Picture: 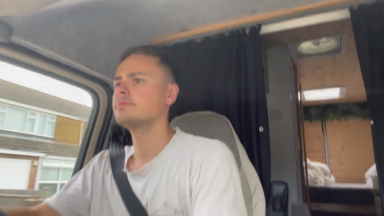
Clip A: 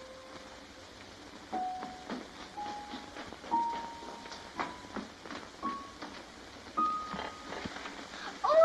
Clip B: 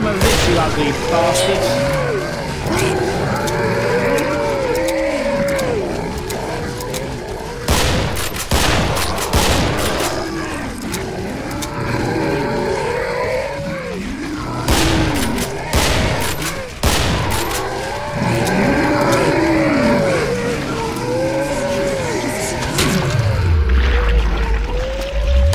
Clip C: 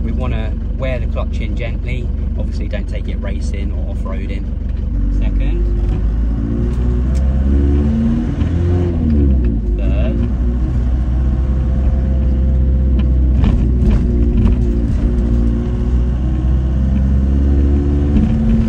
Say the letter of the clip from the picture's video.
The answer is C